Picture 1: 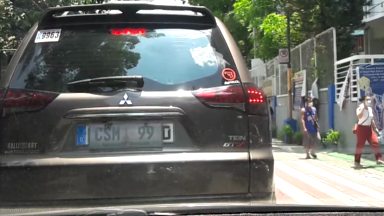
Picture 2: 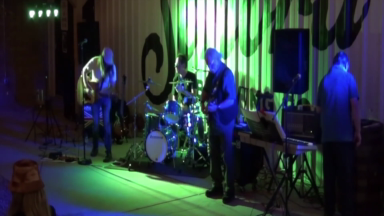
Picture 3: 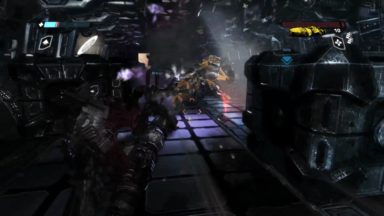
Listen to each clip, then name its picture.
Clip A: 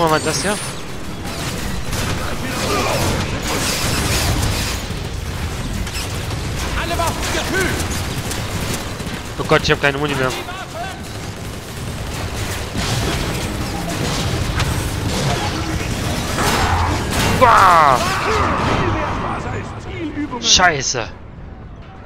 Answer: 3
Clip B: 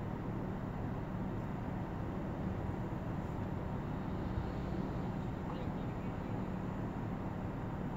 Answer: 1